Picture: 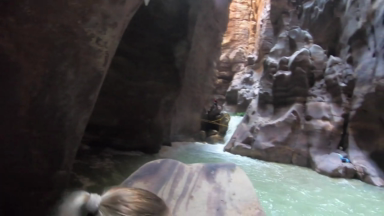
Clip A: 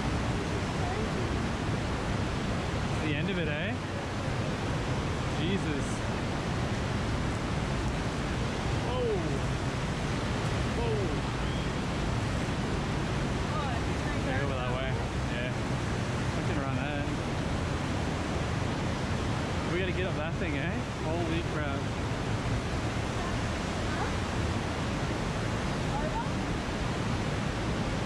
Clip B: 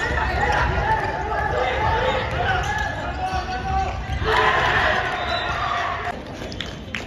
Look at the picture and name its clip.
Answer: A